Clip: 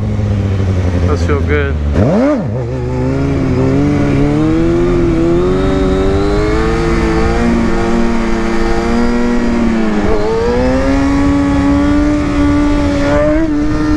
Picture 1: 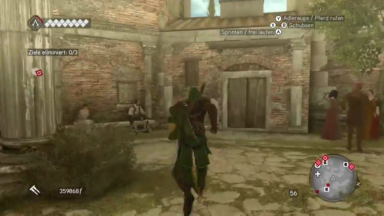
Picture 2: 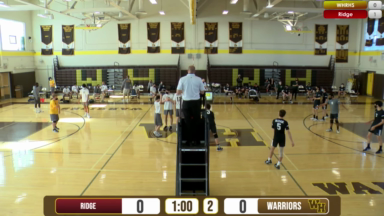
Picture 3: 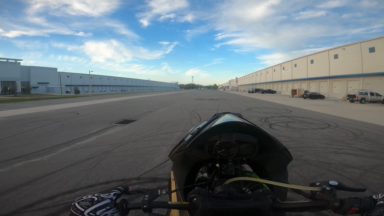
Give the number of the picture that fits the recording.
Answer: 3